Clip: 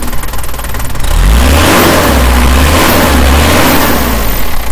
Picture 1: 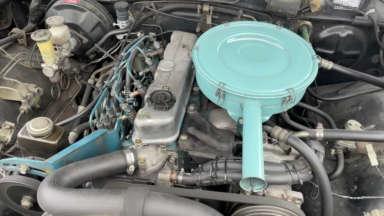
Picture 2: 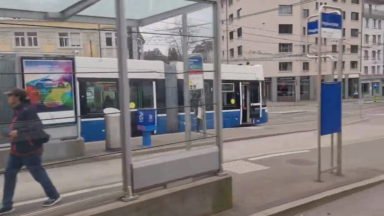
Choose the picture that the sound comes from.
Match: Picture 1